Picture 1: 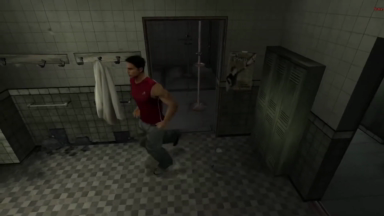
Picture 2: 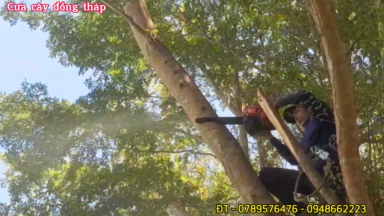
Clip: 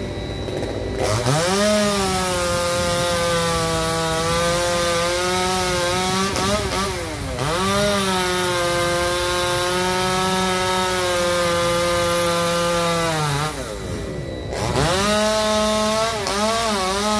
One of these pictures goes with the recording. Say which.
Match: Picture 2